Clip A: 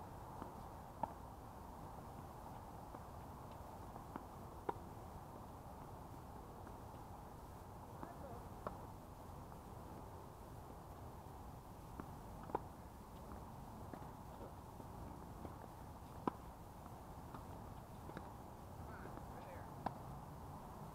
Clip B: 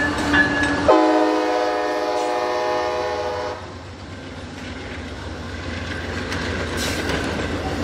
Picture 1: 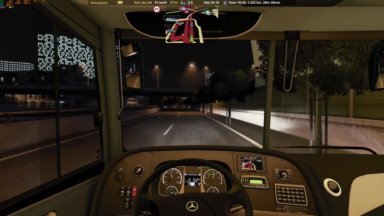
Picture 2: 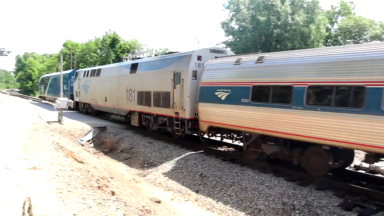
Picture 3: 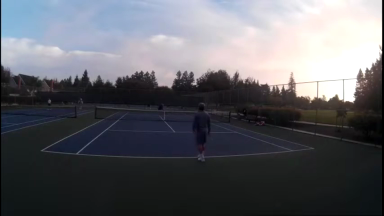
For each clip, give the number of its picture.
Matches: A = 3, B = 2